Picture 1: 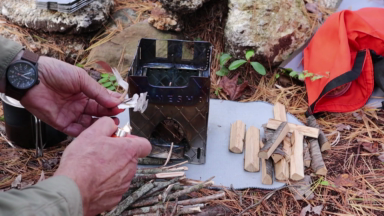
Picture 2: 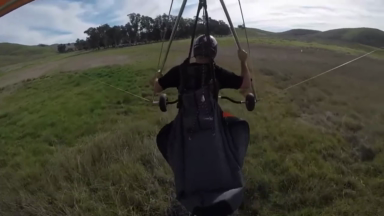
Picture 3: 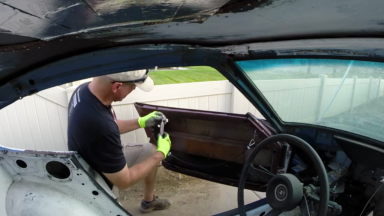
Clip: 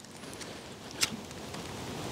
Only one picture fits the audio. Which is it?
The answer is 1